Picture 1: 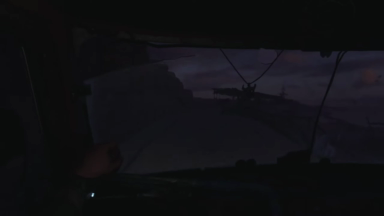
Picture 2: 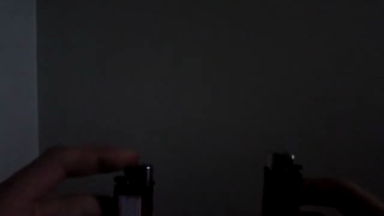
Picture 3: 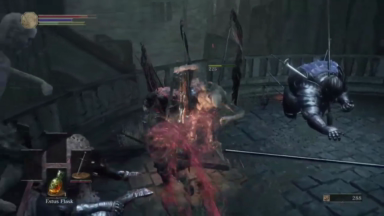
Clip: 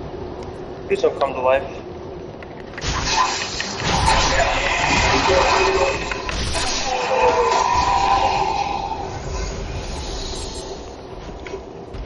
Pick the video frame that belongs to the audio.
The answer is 3